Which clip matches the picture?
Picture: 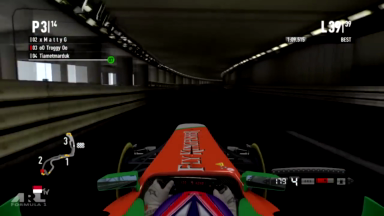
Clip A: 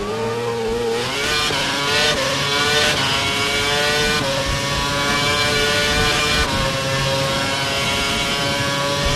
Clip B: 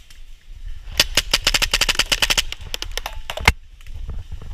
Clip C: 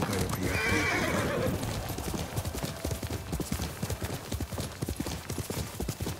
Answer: A